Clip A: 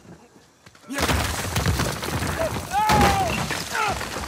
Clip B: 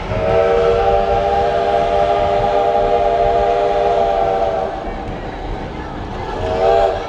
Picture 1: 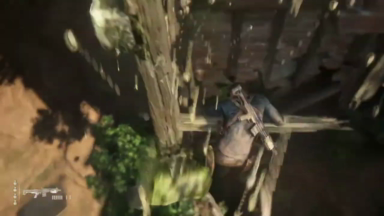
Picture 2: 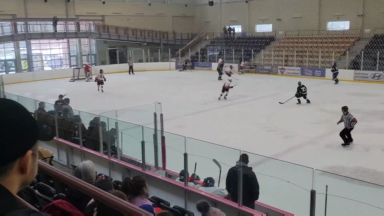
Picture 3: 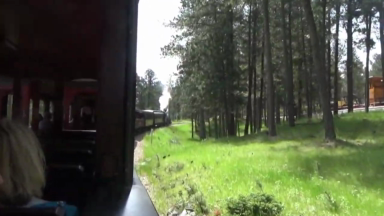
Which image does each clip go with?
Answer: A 1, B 3